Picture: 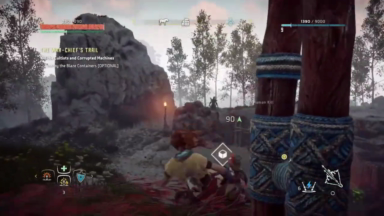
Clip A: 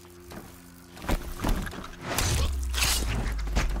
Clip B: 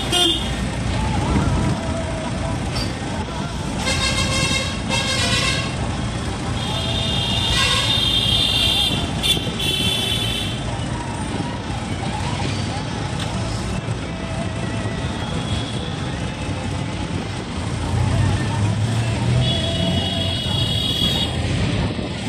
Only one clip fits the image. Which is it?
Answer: A